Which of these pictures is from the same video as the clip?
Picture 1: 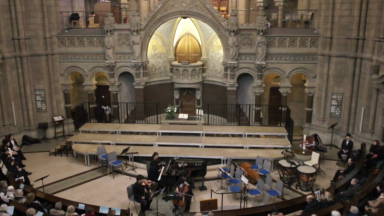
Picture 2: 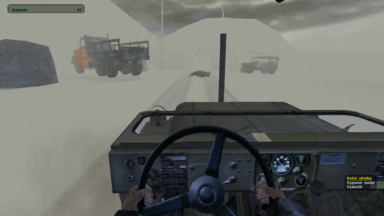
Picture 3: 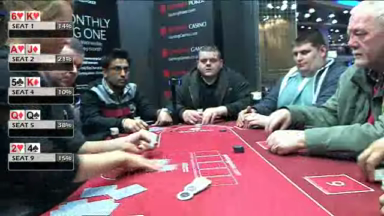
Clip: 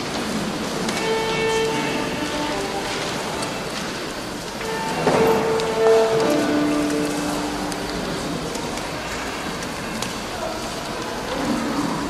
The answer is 1